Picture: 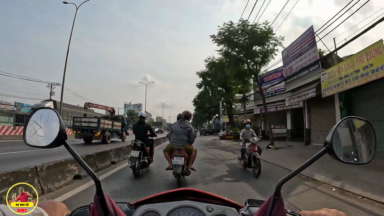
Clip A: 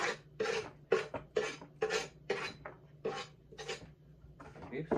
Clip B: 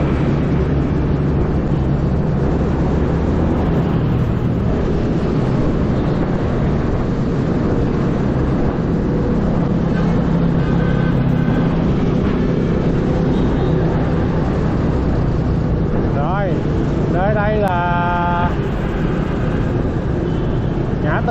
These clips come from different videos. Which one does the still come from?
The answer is B